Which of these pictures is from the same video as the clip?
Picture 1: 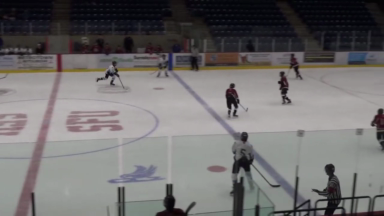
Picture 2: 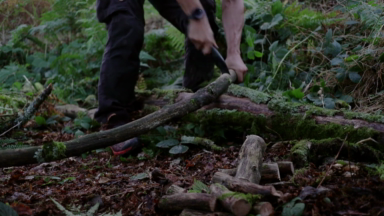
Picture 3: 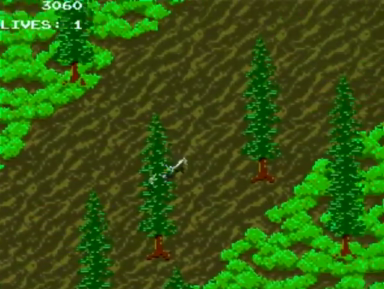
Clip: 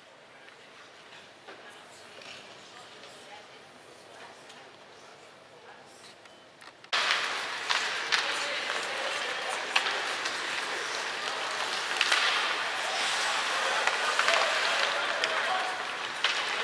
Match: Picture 1